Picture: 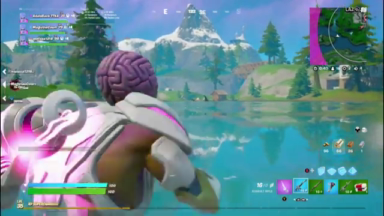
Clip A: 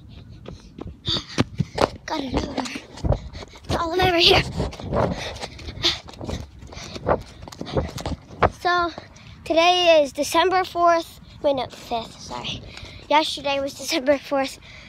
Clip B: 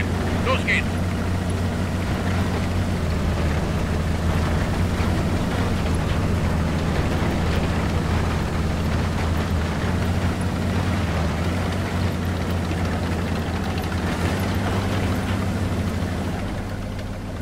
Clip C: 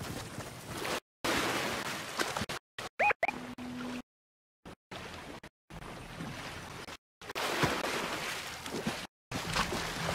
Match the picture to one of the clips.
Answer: C